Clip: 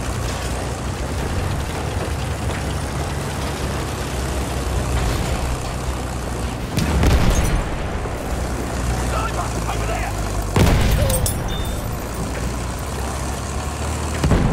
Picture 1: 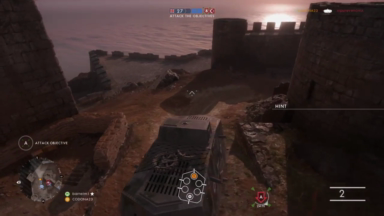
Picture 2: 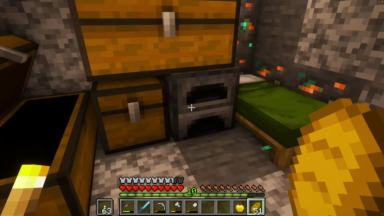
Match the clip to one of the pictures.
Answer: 1